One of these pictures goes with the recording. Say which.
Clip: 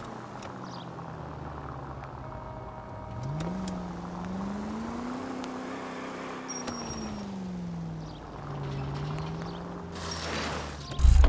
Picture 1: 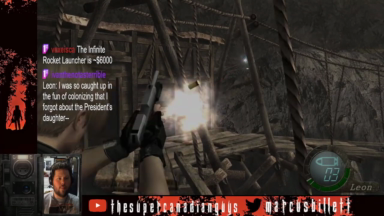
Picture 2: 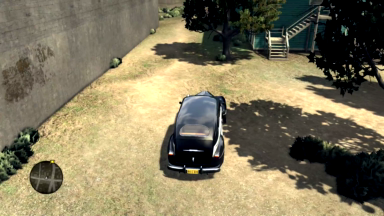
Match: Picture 2